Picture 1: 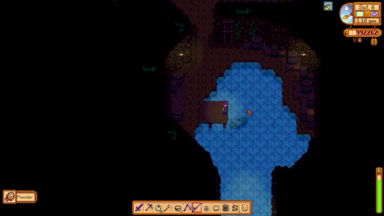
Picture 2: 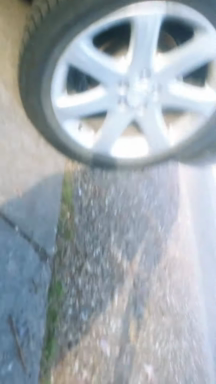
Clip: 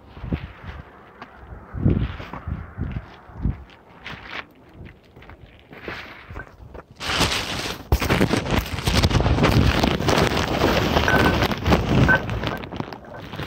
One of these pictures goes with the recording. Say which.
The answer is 2